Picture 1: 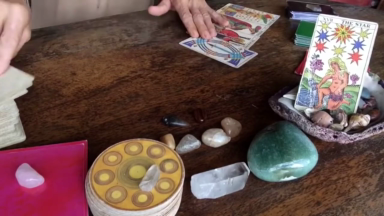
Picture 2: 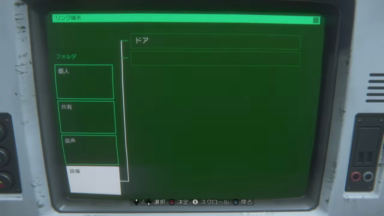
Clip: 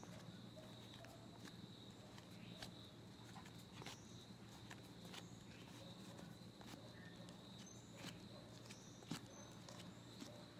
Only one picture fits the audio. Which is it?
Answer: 1